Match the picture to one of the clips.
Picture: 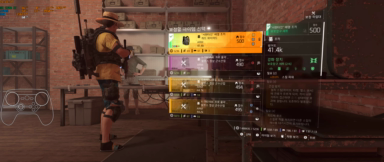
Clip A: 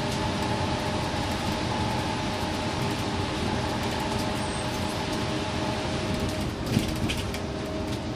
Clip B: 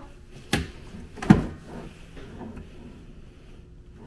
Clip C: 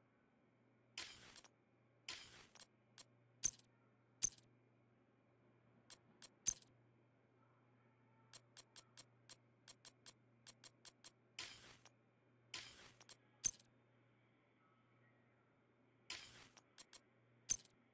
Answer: C